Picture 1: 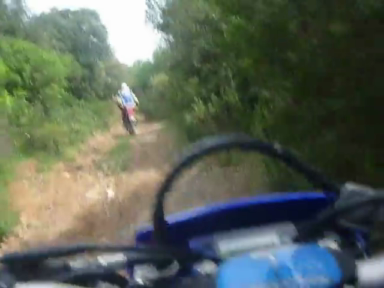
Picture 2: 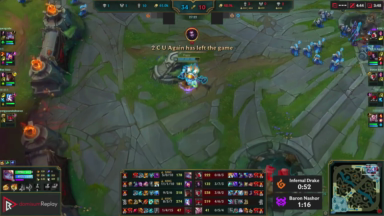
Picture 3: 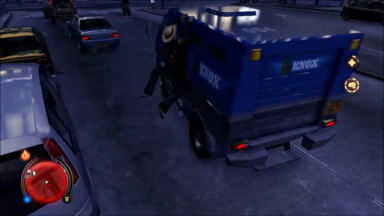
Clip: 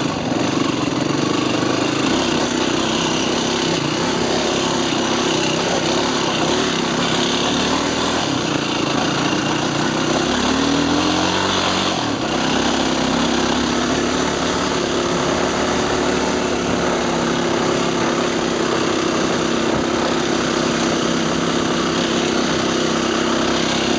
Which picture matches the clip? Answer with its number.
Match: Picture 1